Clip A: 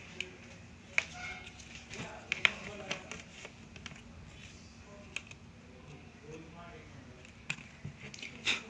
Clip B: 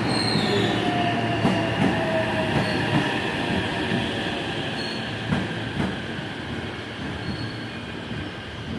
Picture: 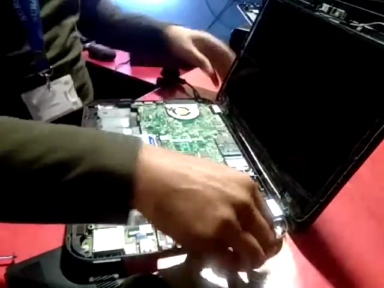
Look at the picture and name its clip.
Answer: A